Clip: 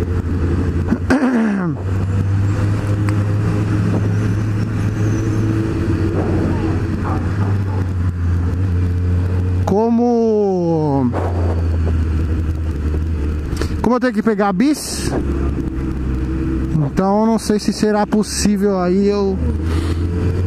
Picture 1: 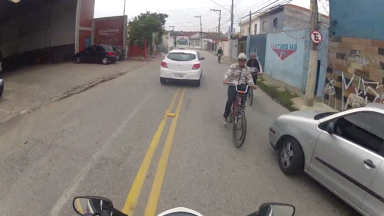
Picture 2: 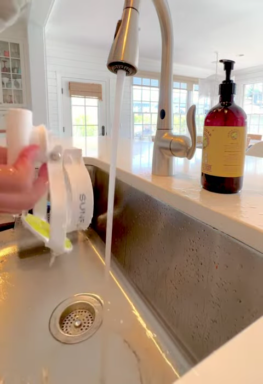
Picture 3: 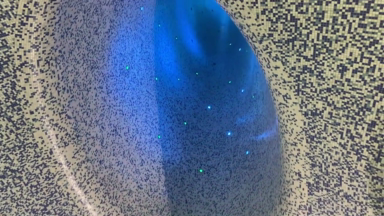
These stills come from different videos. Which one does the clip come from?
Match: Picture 1